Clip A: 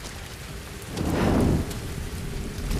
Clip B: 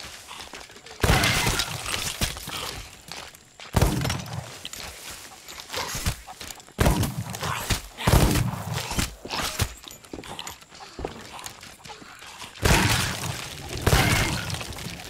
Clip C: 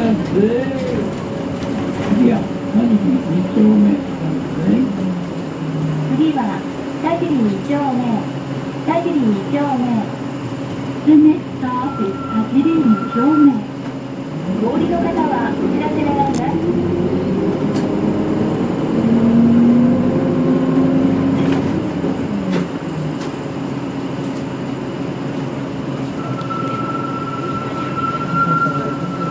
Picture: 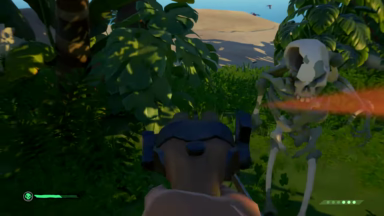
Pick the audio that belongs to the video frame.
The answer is B